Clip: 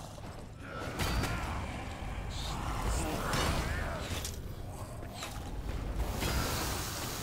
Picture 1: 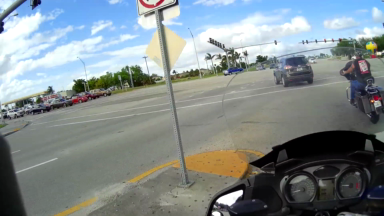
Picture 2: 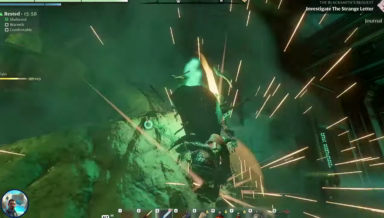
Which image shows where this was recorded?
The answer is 2